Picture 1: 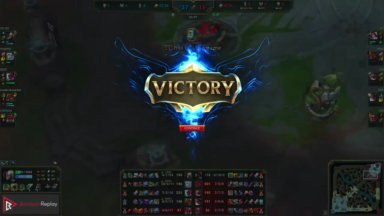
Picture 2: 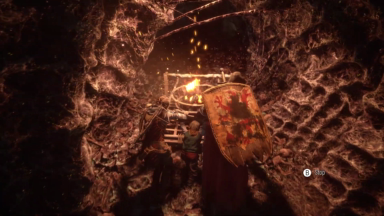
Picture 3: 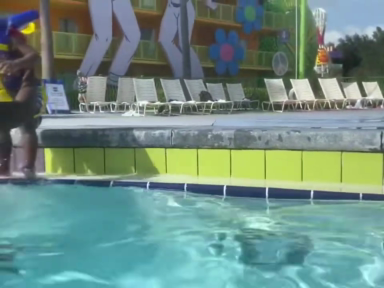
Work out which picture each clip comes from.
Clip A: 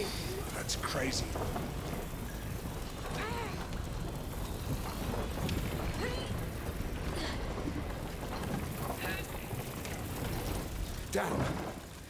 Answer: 2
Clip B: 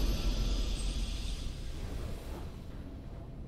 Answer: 1